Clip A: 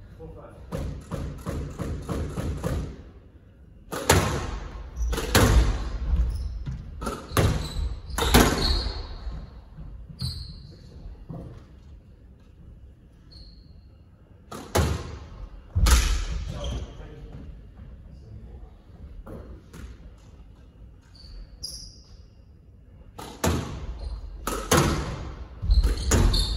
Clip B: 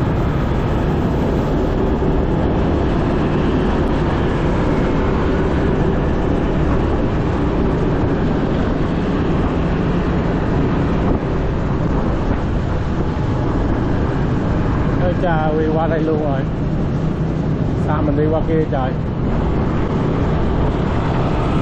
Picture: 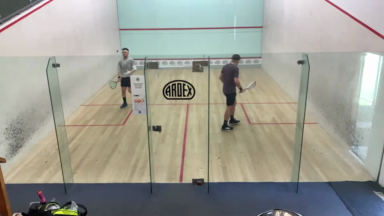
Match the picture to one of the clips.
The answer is A